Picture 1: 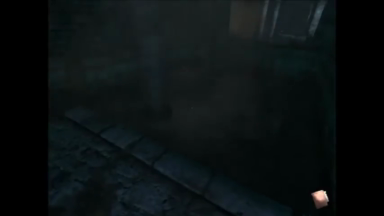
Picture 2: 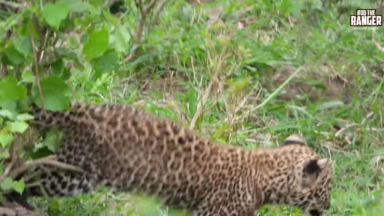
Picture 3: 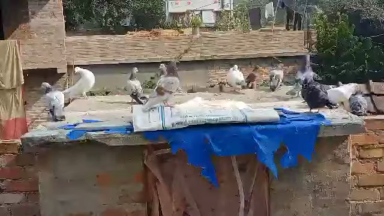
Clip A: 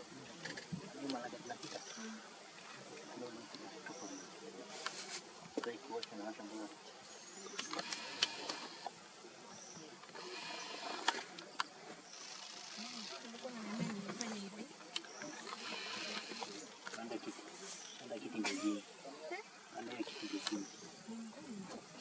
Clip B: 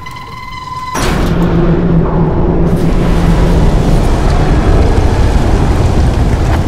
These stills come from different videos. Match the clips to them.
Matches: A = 2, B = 1